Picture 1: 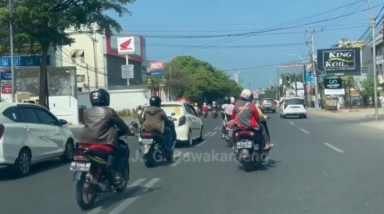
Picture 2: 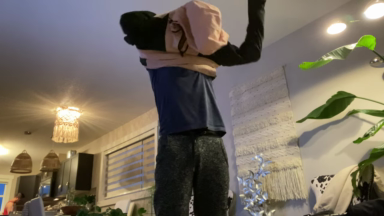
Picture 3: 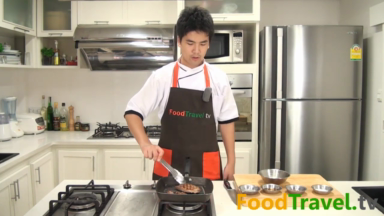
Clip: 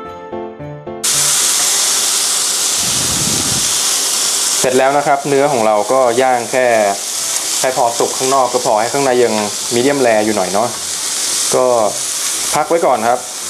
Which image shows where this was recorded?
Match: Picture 3